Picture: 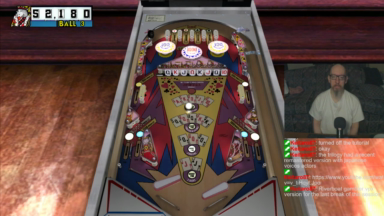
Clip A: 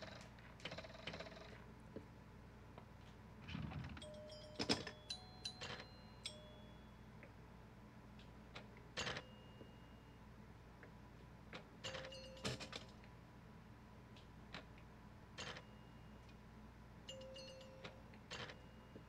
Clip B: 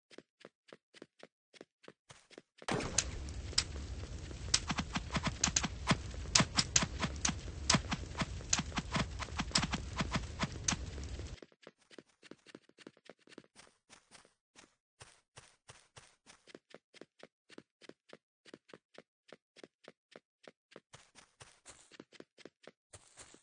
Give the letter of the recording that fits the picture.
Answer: A